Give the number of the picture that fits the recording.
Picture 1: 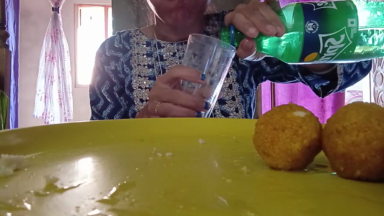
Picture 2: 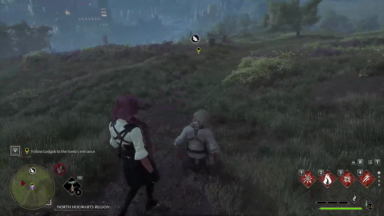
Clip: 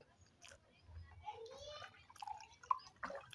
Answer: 1